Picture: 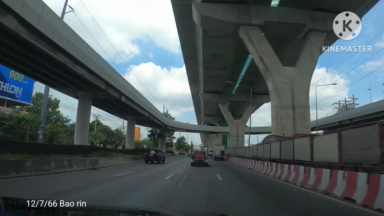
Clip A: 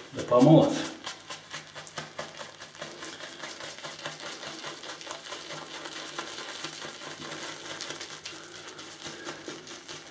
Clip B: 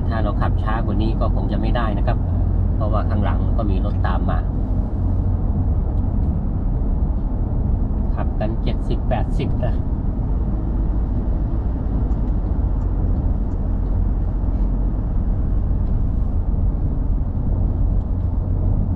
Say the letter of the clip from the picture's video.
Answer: B